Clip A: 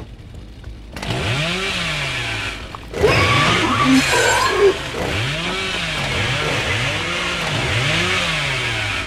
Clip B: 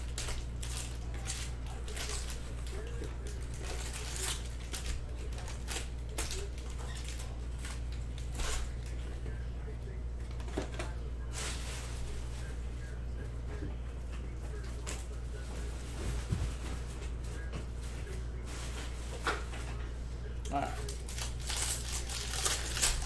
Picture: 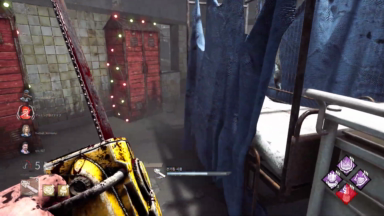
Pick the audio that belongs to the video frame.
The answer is A